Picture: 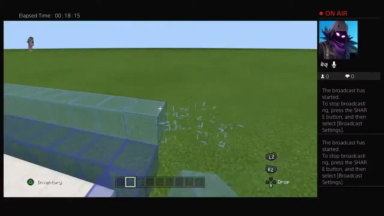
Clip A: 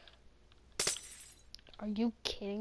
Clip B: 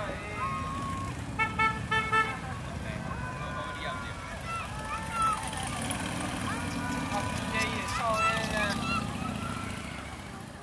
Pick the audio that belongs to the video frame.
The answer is A